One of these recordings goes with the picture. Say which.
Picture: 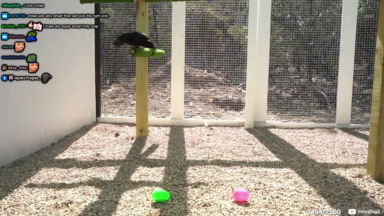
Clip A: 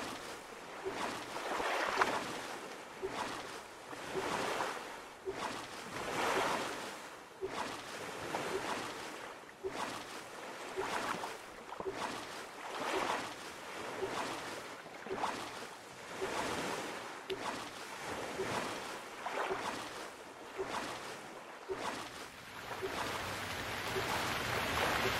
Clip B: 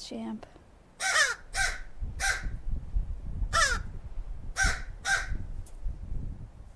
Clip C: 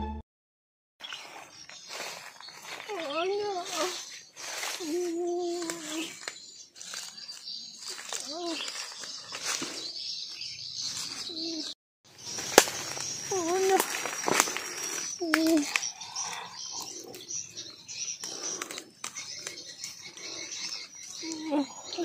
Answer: B